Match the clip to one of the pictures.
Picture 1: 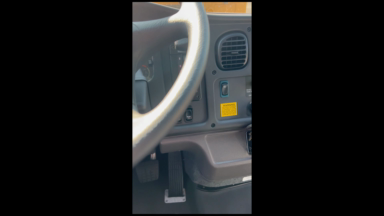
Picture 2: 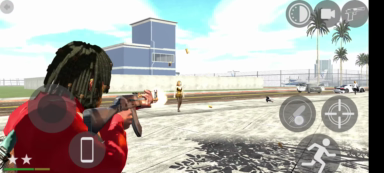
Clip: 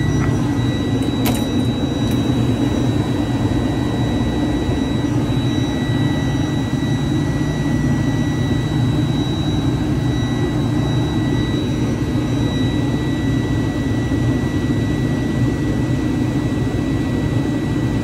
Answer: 1